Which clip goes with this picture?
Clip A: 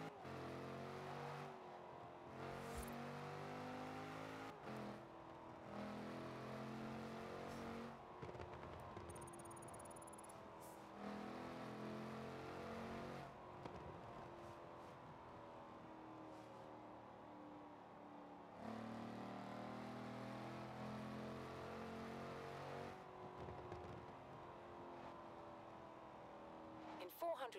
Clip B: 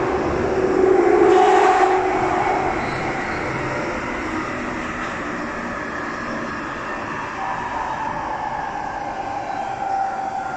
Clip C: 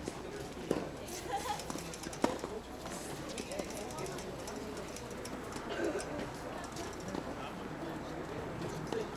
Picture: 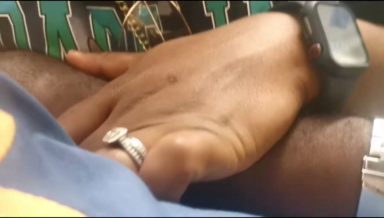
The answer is B